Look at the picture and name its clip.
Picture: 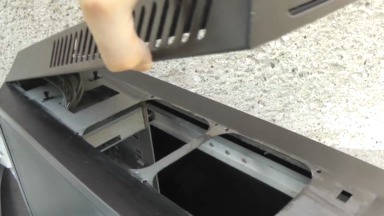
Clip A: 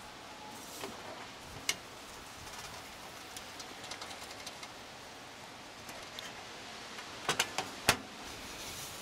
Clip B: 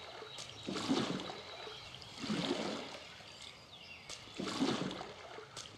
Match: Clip A